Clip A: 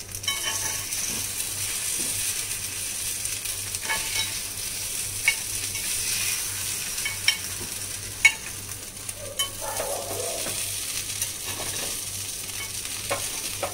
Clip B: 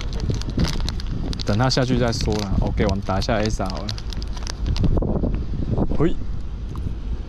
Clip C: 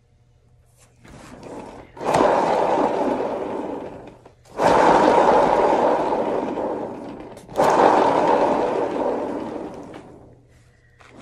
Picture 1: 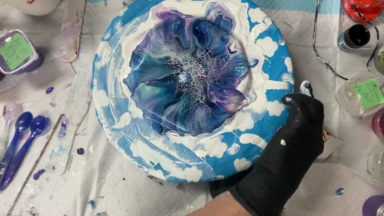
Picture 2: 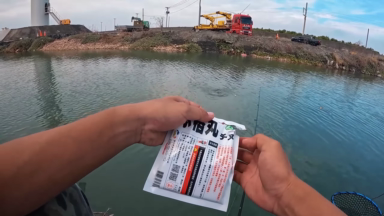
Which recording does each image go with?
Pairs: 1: C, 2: B